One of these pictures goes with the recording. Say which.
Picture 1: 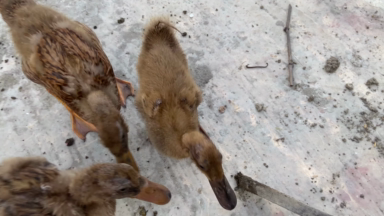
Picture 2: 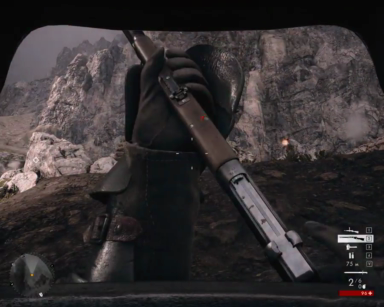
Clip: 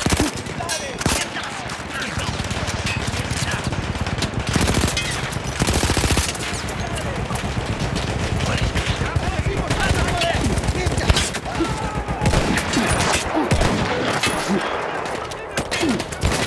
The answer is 2